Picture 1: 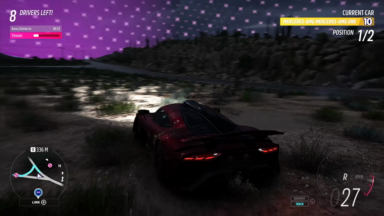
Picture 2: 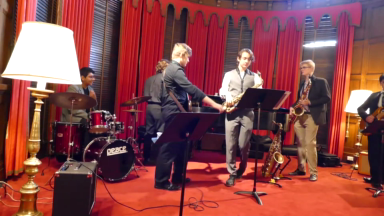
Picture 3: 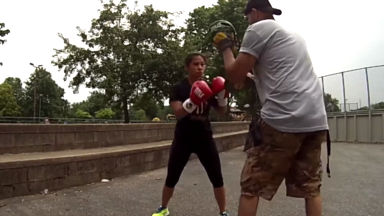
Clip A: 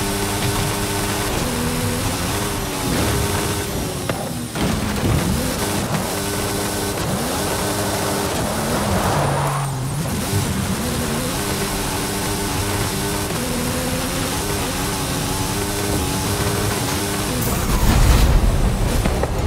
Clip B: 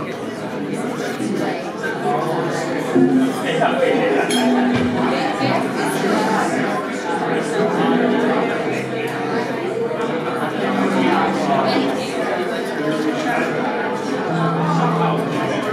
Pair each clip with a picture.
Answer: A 1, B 2